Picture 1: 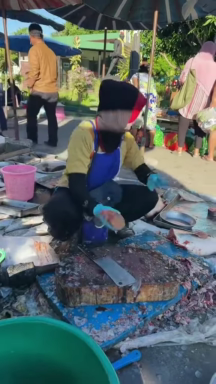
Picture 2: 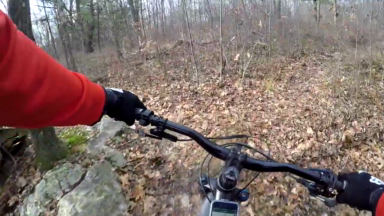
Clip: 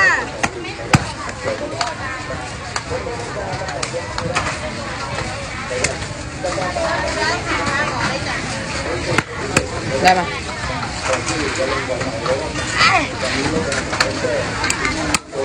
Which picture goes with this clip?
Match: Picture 1